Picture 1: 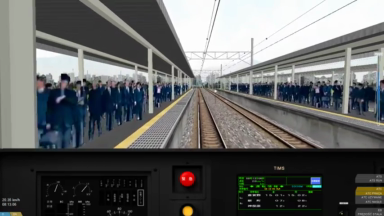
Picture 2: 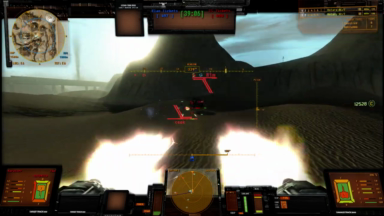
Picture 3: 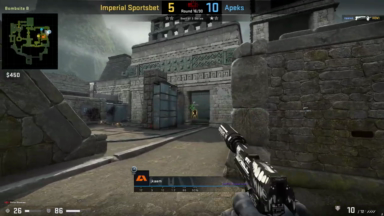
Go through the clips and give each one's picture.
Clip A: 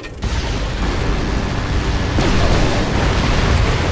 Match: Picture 2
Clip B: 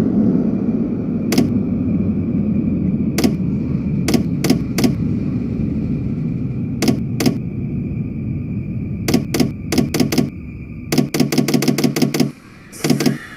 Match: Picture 1